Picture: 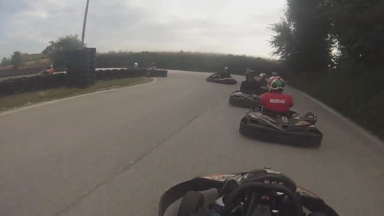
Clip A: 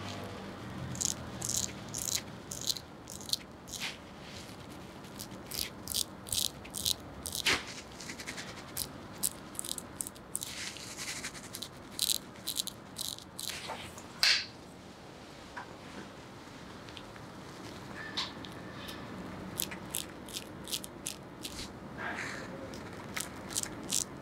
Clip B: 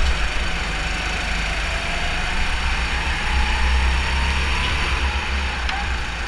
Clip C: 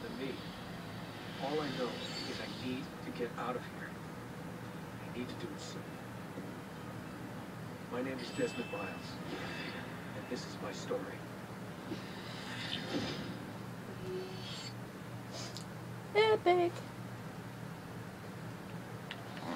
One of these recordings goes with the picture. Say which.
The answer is B